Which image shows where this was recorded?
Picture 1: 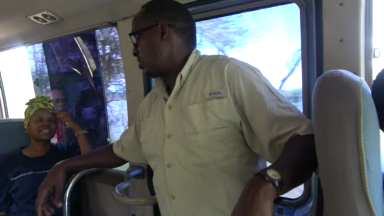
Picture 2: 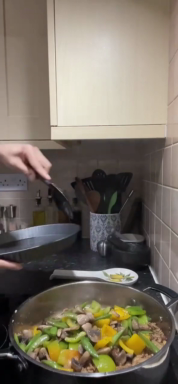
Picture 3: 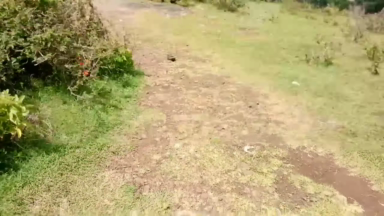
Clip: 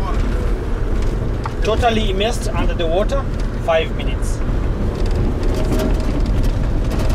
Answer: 1